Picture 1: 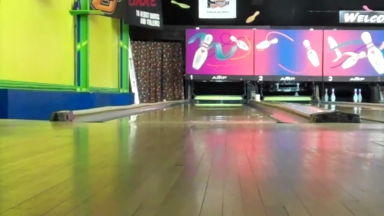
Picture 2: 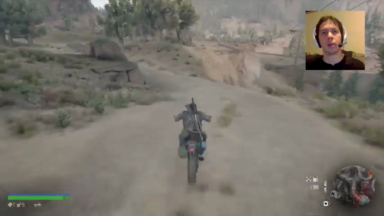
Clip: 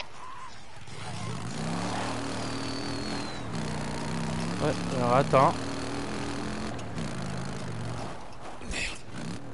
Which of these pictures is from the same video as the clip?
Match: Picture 2